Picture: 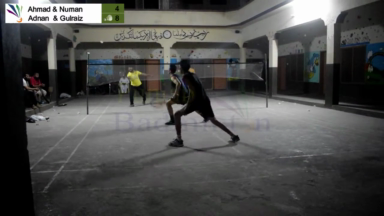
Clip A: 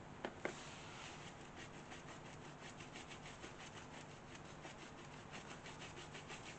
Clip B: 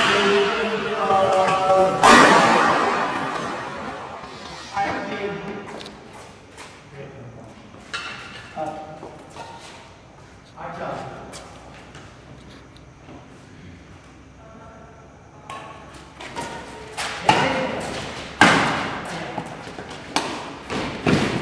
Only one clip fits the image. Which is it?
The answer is B